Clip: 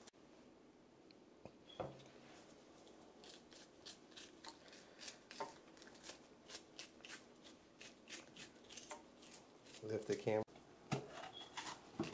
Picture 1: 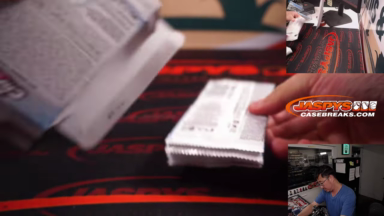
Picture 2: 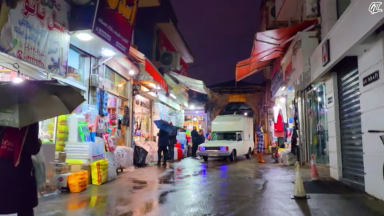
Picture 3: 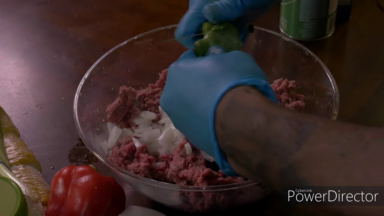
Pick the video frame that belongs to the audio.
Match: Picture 3